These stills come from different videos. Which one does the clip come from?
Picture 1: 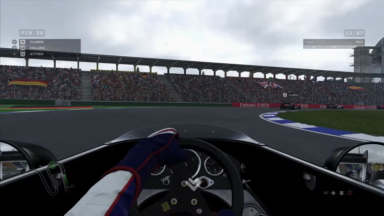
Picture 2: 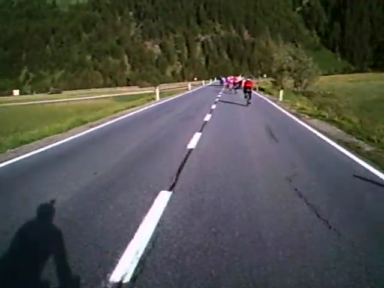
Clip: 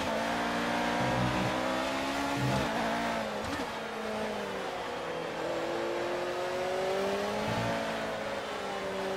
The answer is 1